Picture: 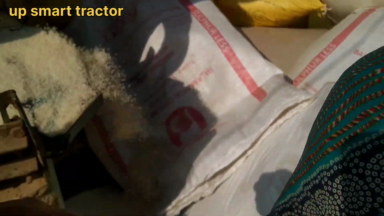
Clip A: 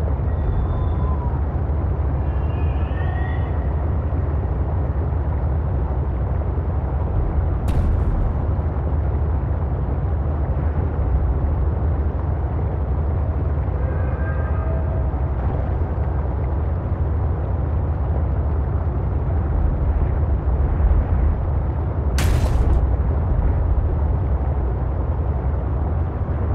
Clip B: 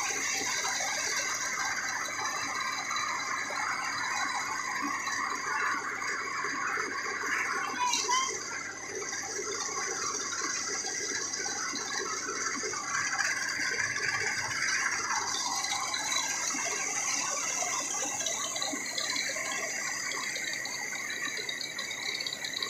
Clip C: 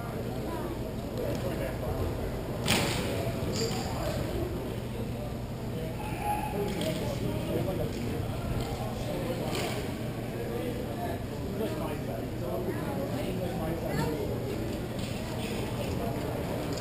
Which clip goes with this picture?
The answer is B